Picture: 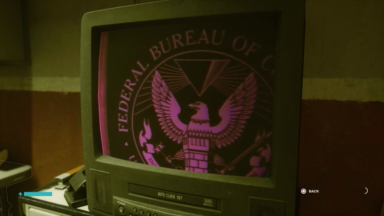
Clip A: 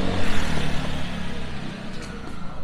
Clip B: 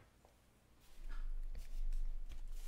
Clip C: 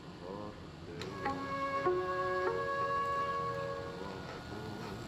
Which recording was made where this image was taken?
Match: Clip C